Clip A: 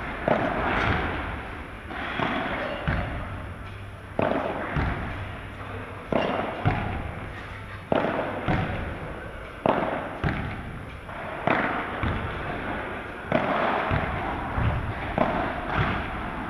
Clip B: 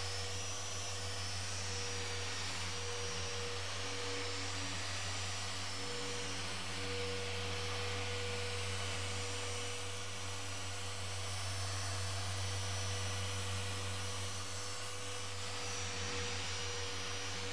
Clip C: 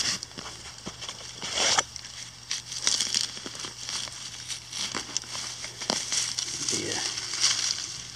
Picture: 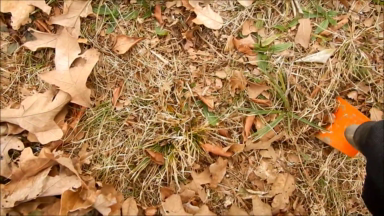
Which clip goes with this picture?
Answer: C